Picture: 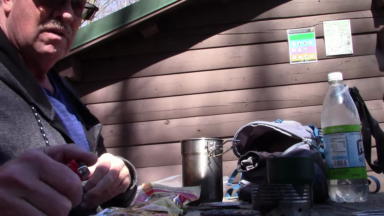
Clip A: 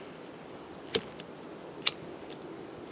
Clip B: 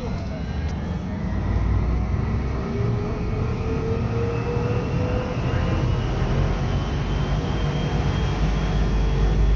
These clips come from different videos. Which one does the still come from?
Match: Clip A